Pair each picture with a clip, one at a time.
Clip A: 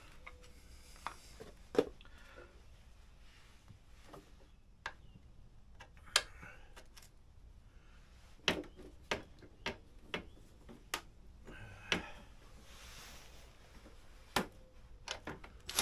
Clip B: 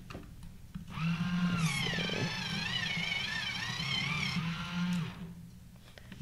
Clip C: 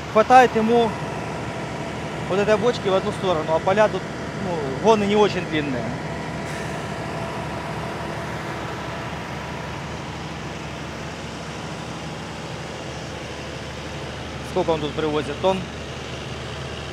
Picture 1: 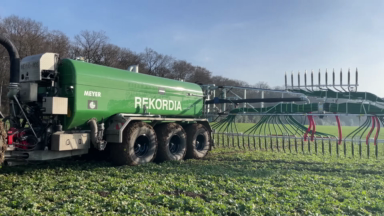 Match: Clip C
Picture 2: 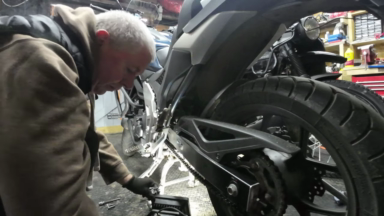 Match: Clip A